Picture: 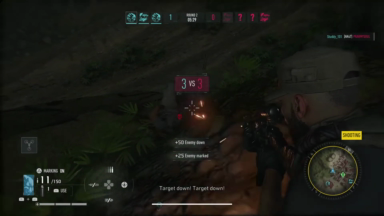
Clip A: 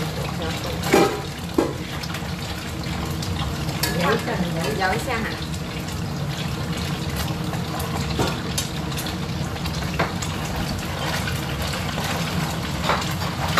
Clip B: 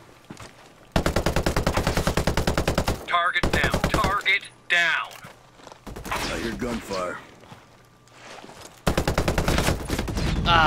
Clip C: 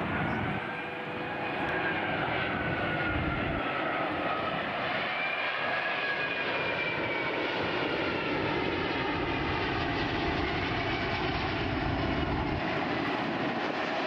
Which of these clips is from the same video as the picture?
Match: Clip B